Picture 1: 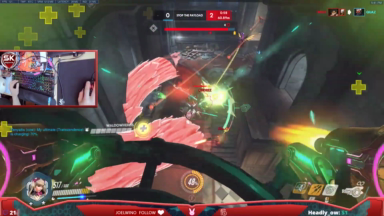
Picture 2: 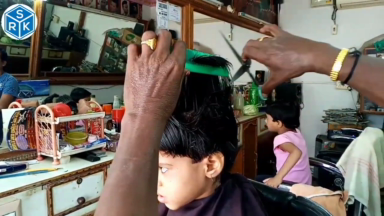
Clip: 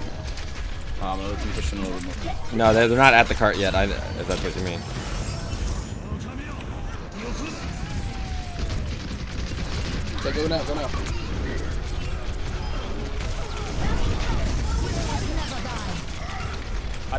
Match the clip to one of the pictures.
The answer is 1